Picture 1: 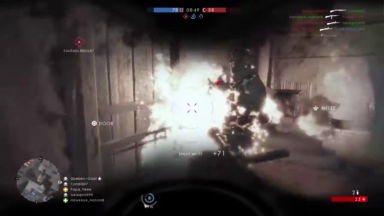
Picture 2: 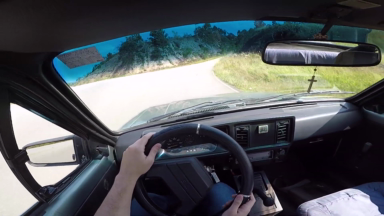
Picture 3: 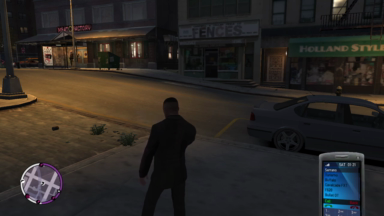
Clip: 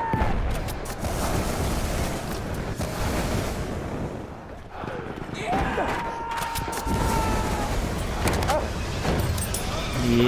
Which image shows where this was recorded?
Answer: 1